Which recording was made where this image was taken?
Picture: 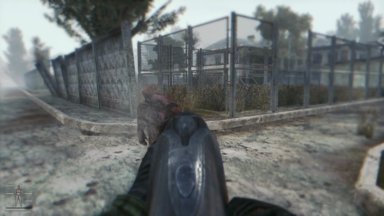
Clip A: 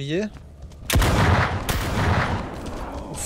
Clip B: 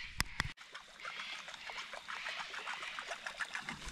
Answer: A